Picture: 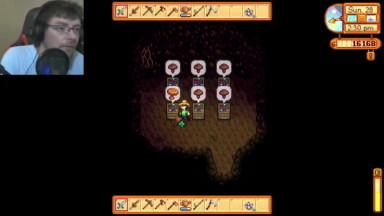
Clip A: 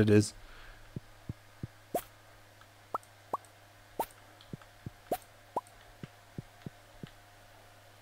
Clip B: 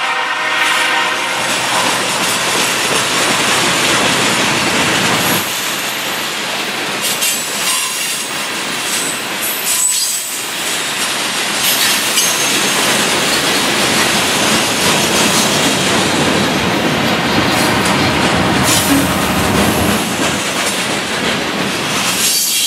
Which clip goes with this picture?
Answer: A